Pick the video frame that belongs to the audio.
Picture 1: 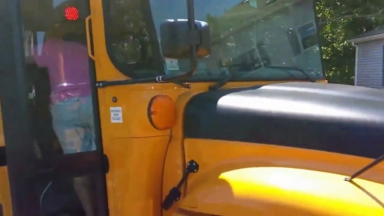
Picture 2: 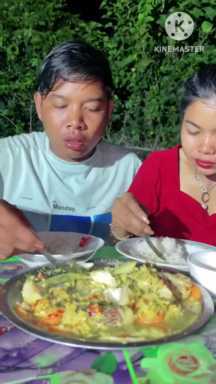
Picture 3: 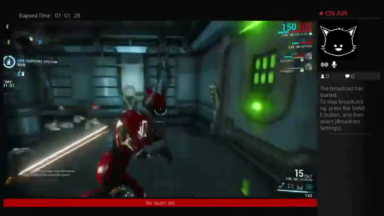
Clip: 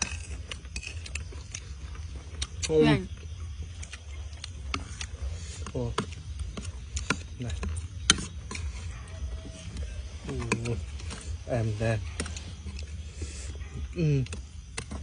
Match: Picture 2